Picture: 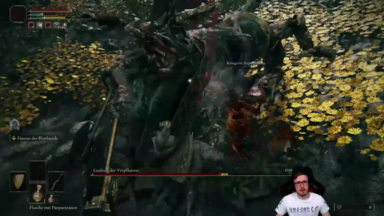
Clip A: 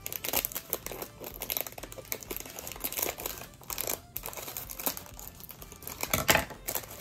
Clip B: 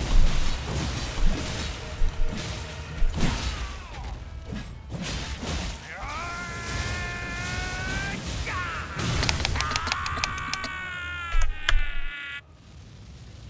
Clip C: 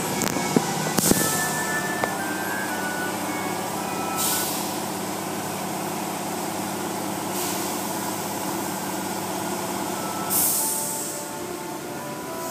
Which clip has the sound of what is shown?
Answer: B